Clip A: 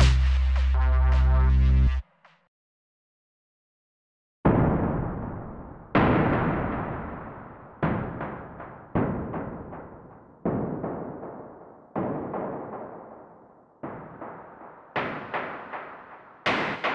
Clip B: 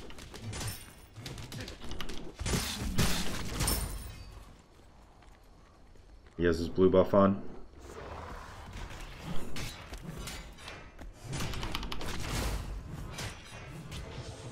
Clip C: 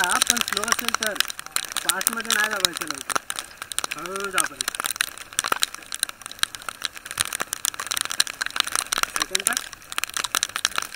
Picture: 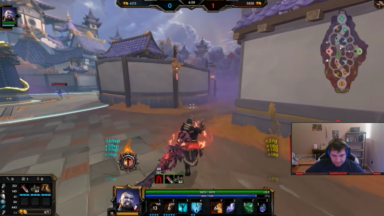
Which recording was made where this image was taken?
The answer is B